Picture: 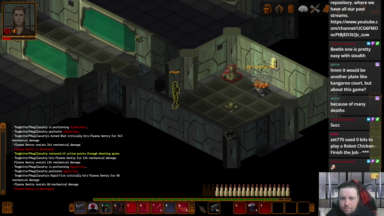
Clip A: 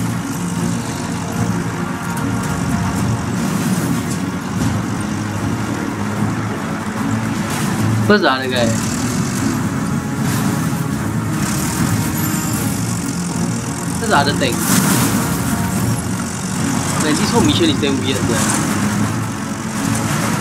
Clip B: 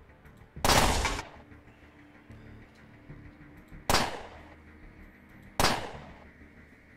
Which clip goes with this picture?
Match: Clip B